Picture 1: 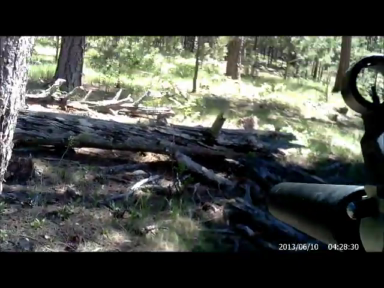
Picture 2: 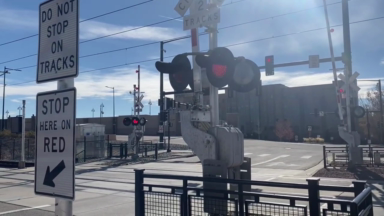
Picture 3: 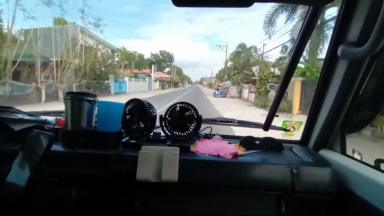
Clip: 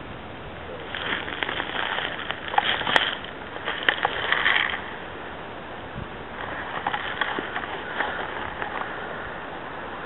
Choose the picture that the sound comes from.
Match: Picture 1